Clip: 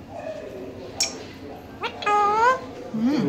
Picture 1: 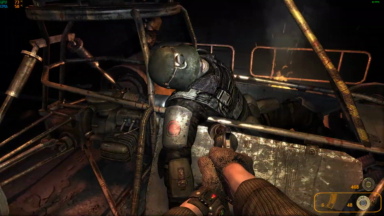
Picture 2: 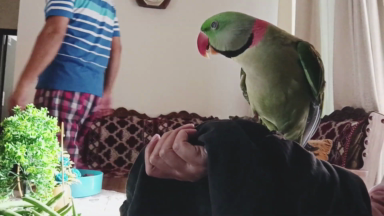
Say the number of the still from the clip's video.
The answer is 2